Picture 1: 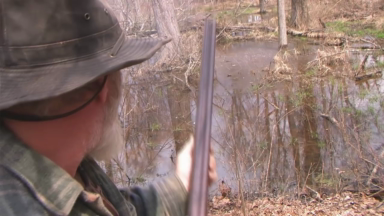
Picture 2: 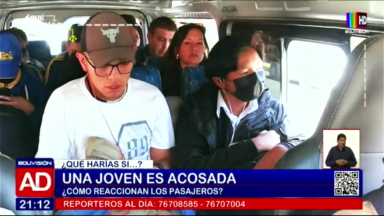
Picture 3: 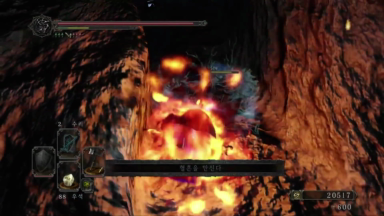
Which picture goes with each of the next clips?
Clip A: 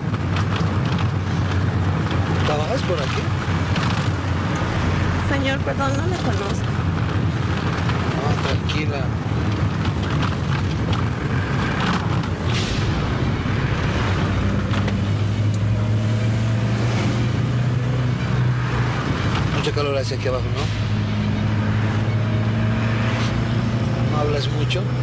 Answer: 2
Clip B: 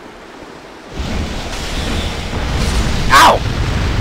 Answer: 3